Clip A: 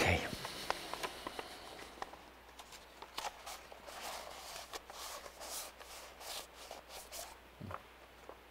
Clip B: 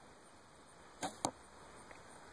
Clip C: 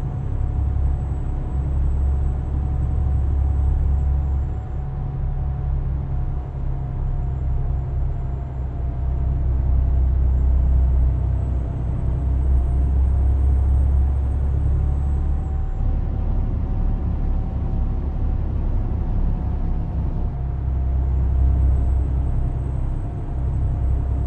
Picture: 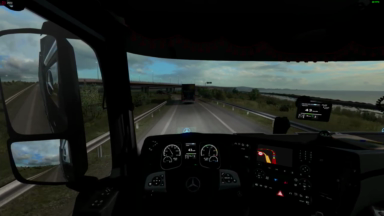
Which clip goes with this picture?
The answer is C